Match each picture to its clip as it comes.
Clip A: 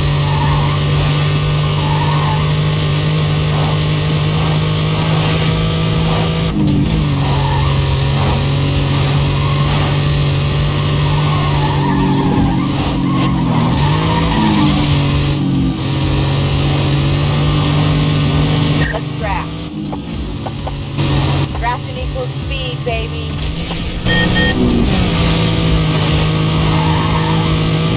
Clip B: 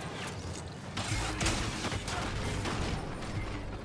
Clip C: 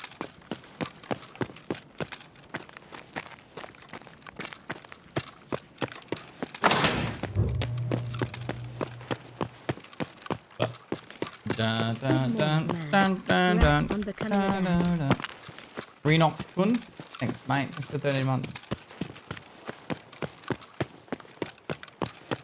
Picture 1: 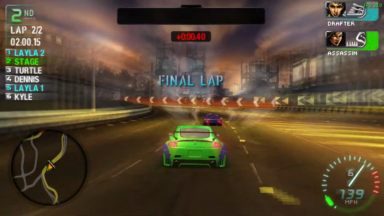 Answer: A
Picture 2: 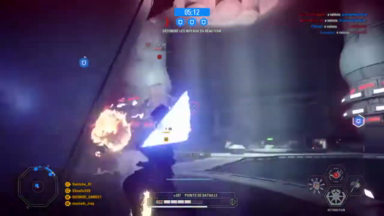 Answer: B